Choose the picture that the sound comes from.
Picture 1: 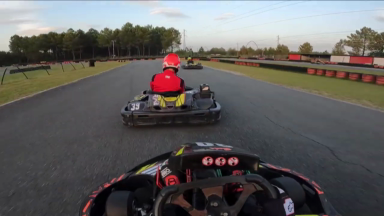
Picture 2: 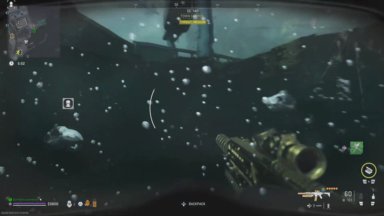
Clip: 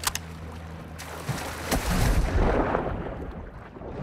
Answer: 2